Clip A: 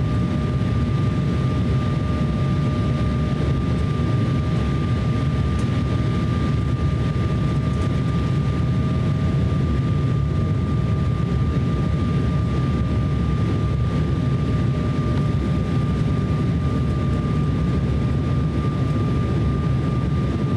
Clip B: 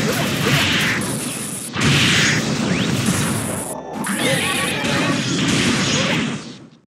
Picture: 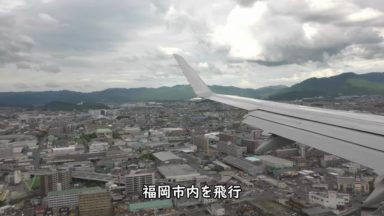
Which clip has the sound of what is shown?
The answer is A